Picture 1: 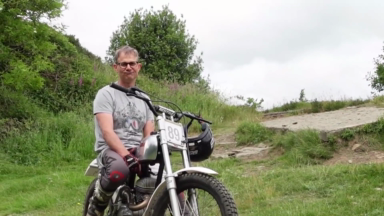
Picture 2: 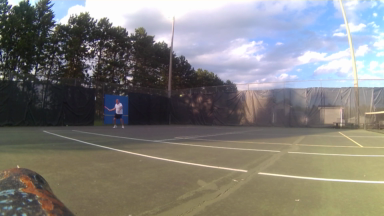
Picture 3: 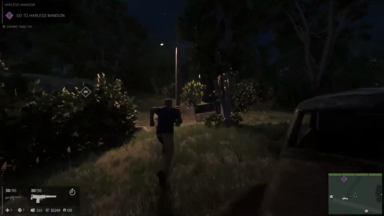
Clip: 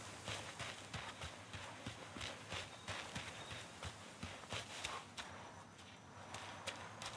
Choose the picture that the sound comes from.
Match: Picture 3